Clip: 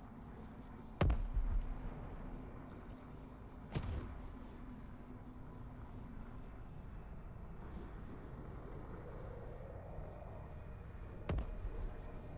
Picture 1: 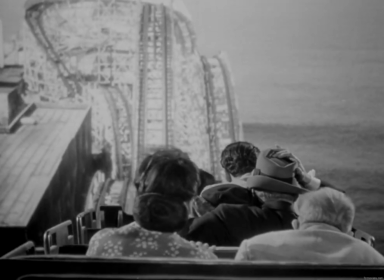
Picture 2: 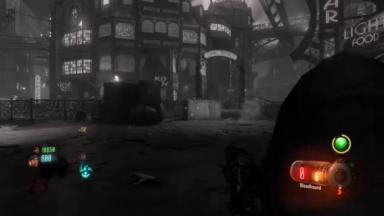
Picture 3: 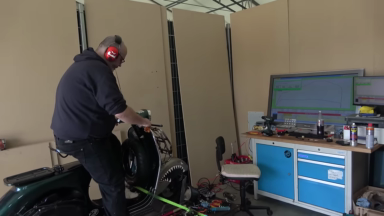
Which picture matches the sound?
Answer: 2